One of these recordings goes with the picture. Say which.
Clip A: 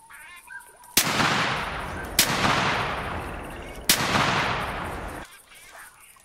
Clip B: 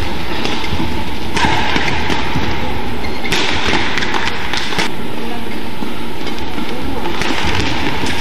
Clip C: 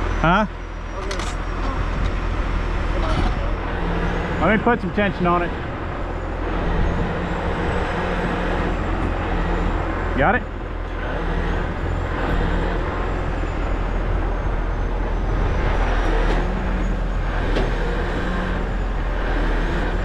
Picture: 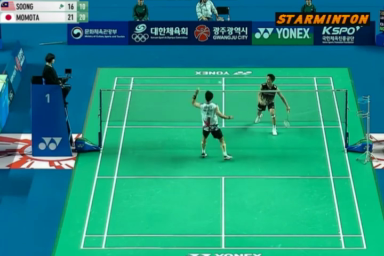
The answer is B